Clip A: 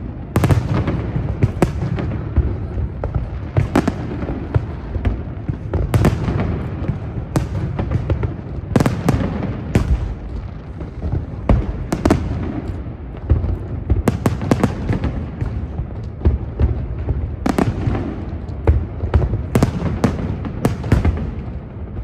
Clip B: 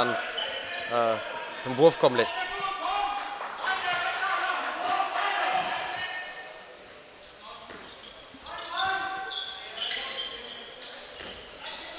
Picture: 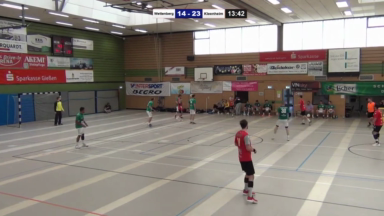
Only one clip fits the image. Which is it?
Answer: B